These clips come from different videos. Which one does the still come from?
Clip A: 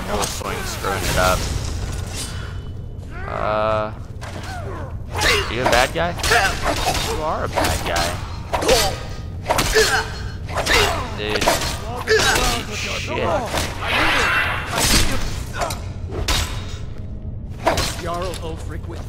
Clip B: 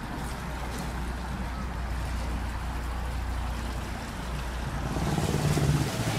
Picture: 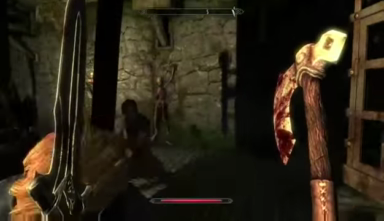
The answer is A